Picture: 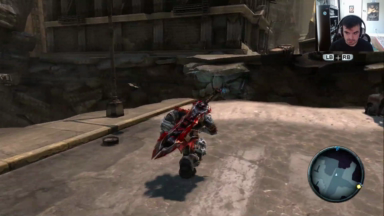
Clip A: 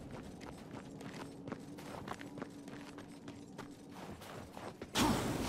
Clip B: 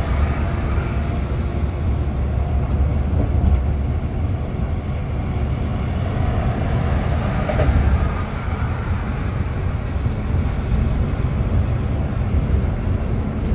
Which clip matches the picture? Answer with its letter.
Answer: A